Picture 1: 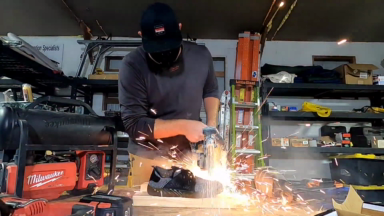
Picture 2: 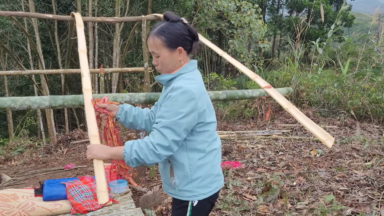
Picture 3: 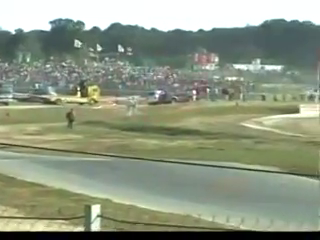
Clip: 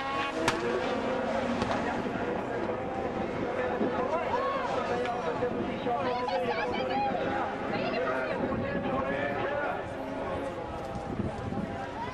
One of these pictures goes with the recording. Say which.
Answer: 3